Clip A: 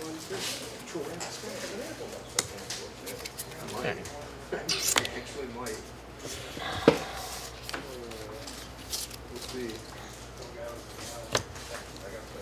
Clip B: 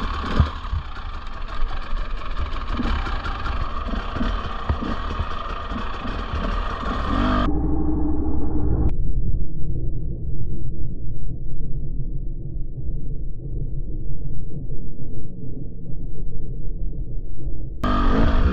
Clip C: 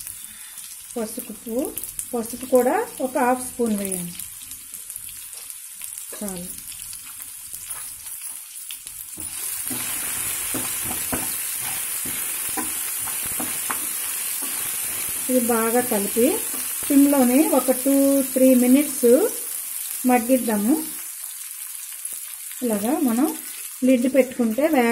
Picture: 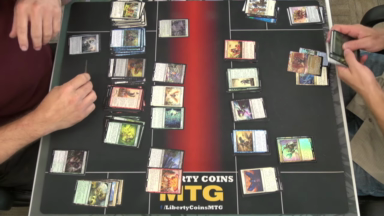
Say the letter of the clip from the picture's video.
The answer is A